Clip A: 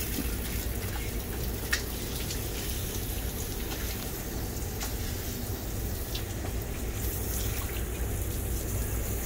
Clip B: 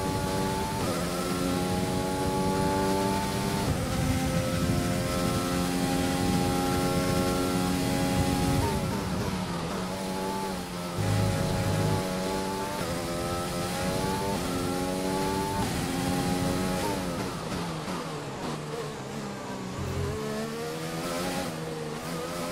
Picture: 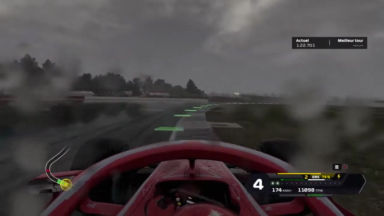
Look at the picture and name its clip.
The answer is B